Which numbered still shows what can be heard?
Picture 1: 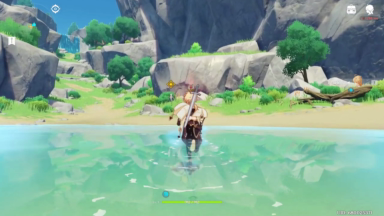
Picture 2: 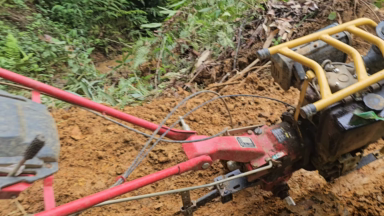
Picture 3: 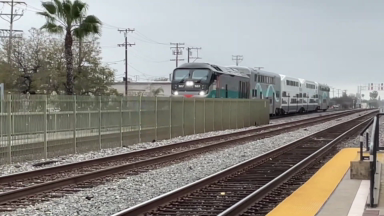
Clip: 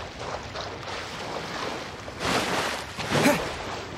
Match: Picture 1